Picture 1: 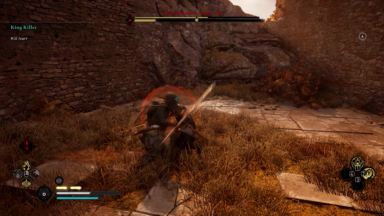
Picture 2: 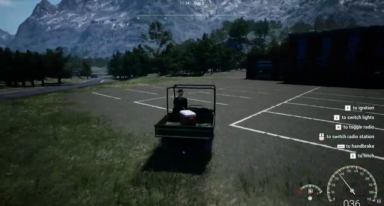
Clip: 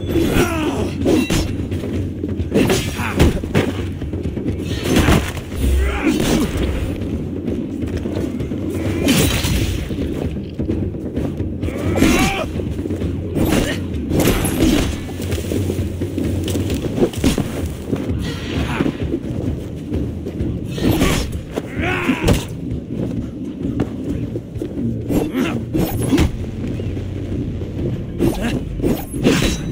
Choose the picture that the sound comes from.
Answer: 1